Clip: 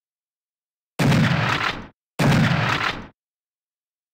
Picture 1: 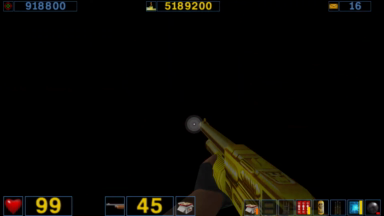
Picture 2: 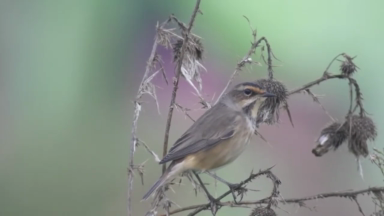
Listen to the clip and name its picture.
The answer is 1